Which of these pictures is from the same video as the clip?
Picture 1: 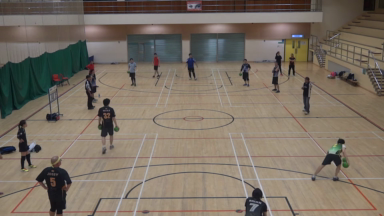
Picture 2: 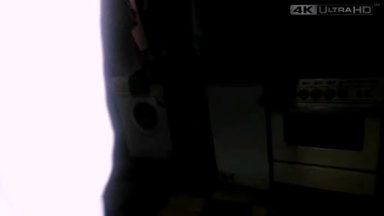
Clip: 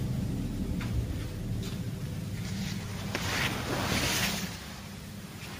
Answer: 2